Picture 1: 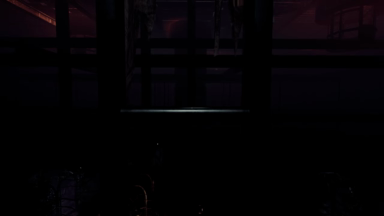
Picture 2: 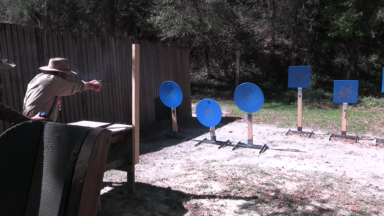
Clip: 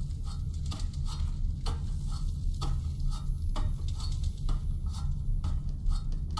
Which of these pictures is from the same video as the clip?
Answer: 1